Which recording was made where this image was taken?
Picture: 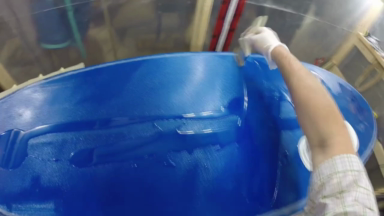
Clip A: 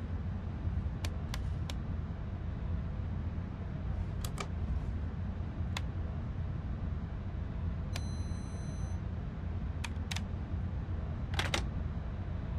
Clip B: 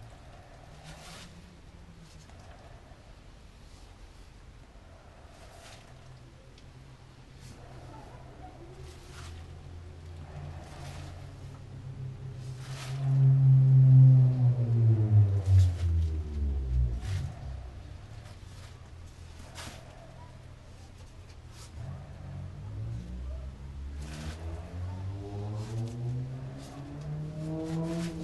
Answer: B